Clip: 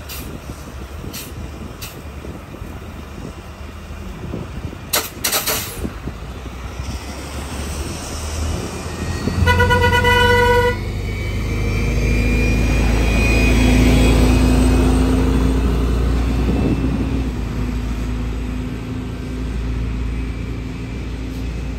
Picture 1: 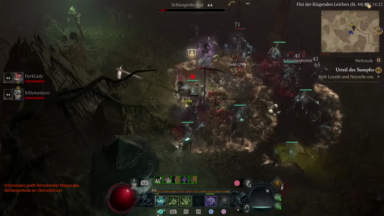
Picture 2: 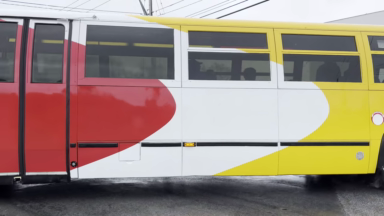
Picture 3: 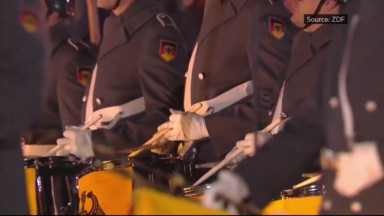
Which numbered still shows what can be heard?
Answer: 2